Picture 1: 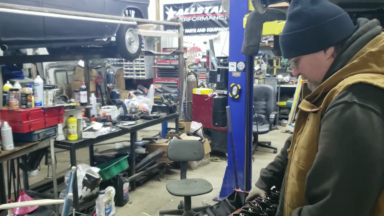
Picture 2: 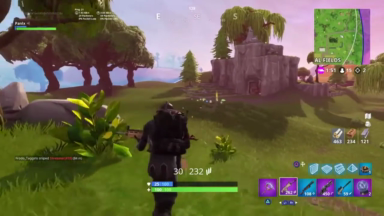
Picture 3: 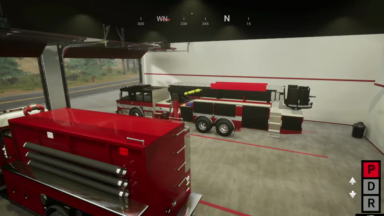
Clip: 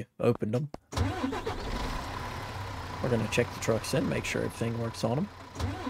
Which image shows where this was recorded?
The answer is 3